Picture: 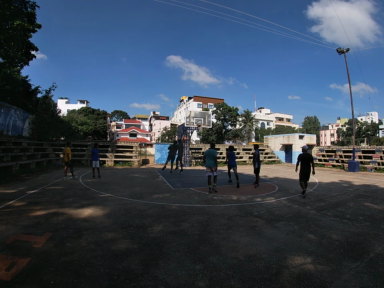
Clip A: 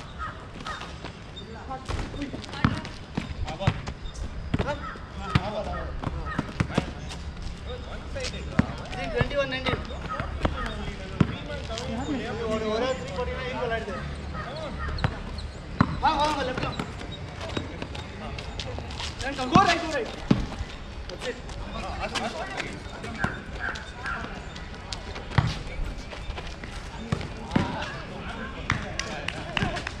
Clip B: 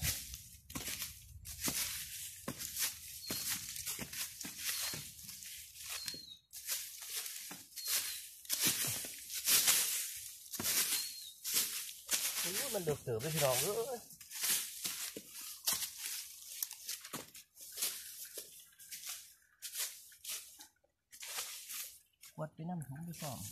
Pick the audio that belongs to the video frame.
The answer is A